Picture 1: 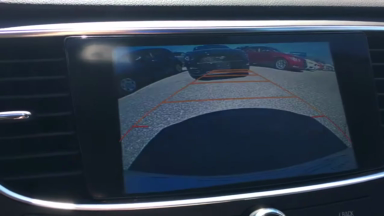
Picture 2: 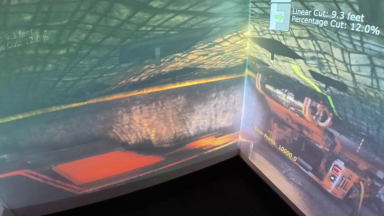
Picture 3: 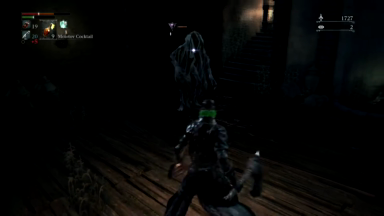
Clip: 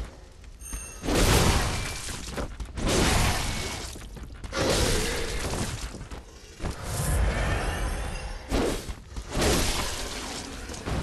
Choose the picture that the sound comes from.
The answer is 3